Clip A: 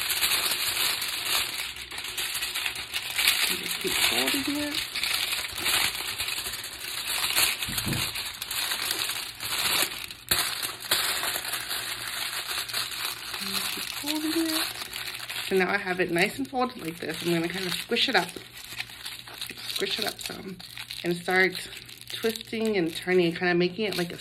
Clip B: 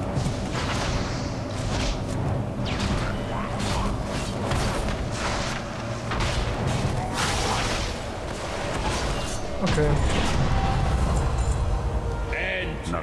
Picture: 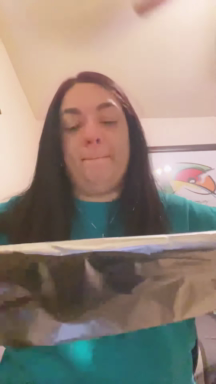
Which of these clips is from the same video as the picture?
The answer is A